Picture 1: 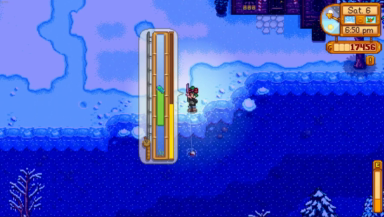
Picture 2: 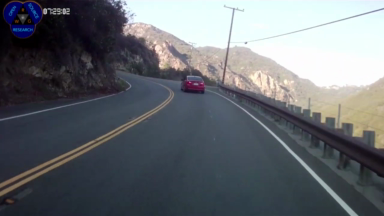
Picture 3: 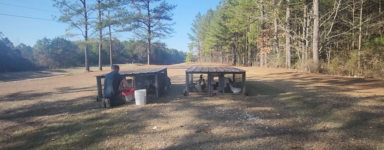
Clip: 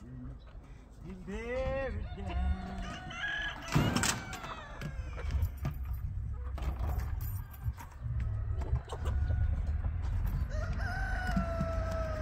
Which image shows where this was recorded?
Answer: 3